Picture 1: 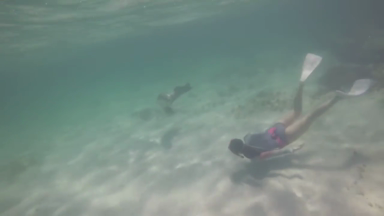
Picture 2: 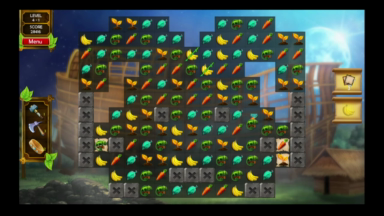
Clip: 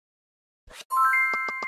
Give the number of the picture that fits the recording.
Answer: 2